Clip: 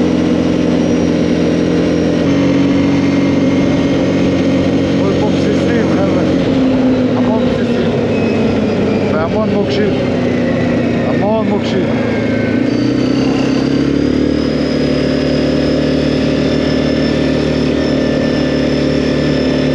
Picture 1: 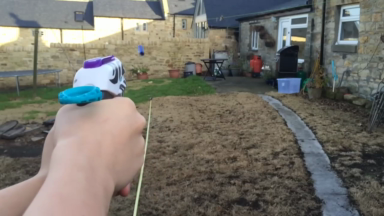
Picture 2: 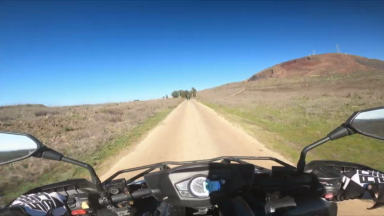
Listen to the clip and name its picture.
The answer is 2